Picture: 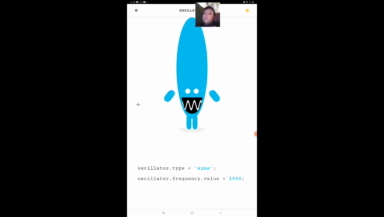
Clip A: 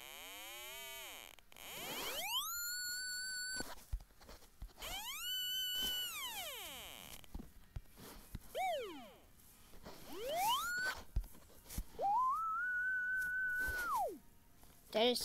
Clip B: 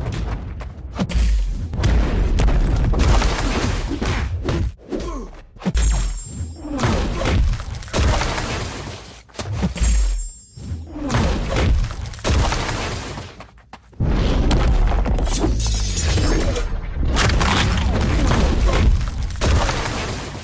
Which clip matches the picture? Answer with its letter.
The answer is A